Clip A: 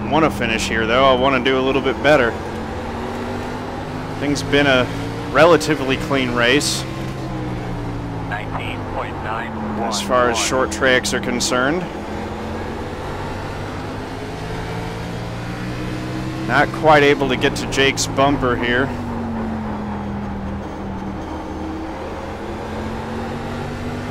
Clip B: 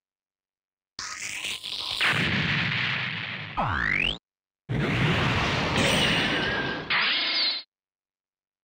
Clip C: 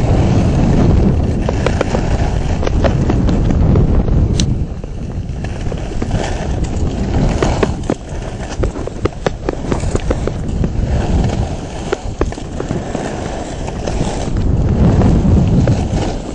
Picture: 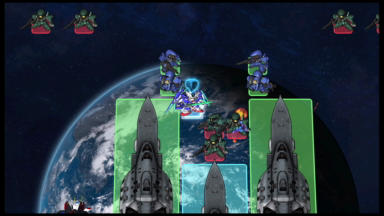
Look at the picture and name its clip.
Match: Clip B